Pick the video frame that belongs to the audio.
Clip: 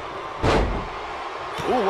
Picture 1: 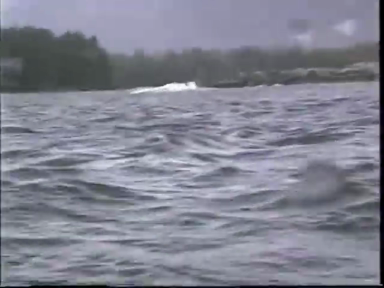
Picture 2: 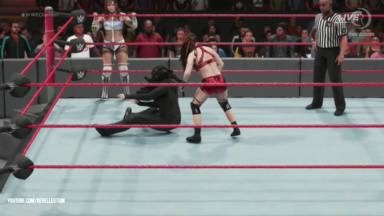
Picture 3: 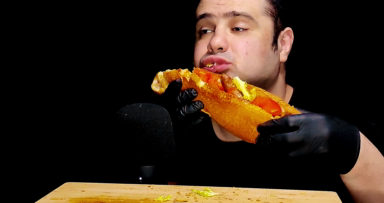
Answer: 2